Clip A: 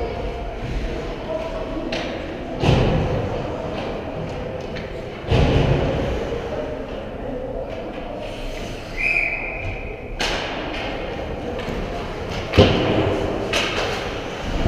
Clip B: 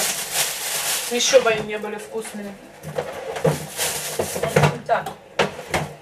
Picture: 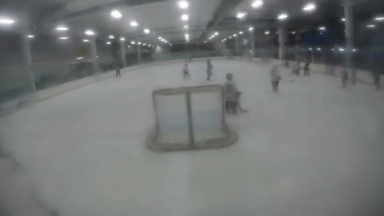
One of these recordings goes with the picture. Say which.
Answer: A